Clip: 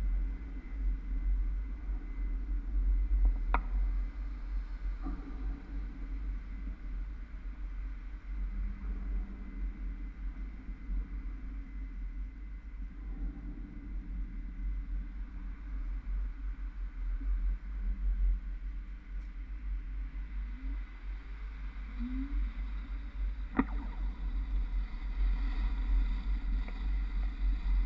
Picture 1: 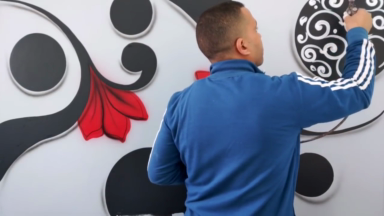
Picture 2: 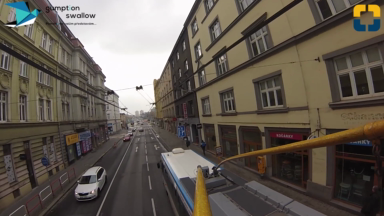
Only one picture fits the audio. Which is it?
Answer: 2